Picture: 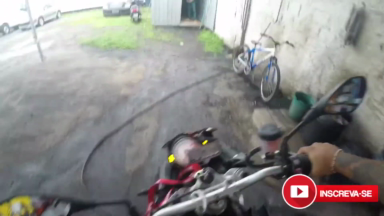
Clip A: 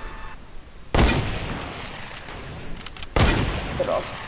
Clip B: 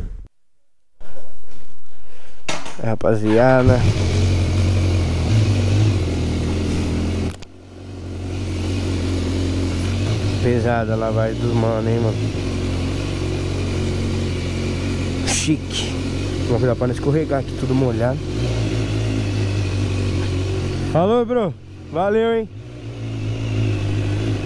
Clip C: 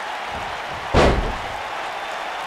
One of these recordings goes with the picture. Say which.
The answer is B